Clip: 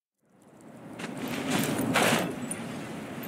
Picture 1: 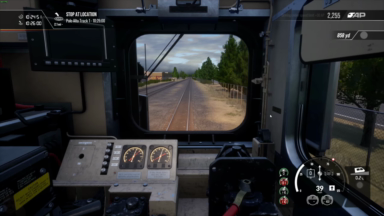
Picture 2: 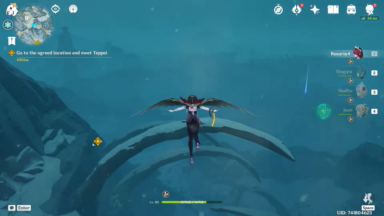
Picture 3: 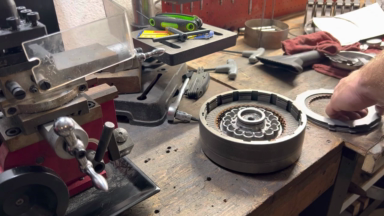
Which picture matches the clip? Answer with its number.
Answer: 2